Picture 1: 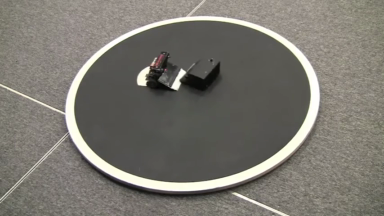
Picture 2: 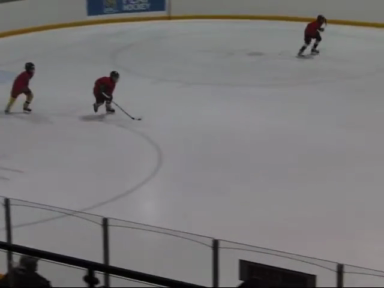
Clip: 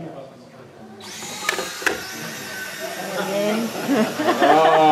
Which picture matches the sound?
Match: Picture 1